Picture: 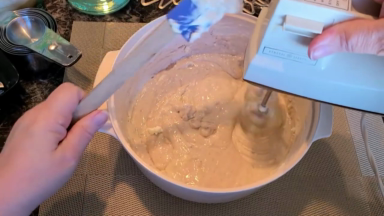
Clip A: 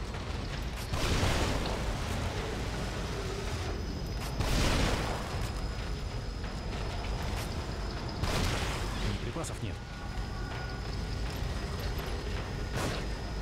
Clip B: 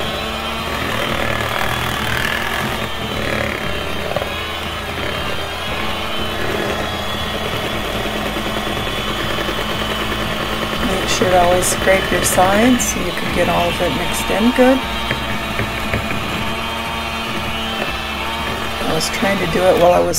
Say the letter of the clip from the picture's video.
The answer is B